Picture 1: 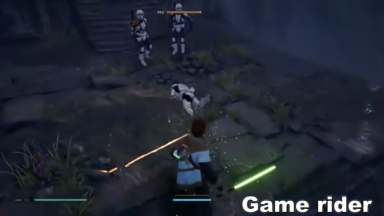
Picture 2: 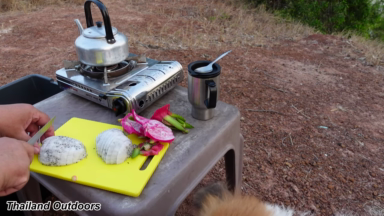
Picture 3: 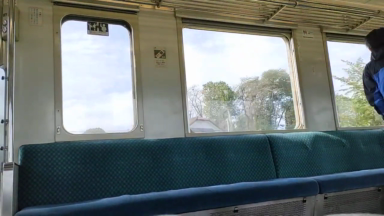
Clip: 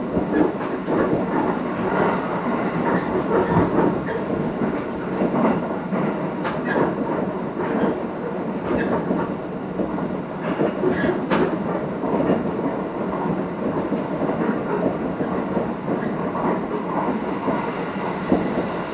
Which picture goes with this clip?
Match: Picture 3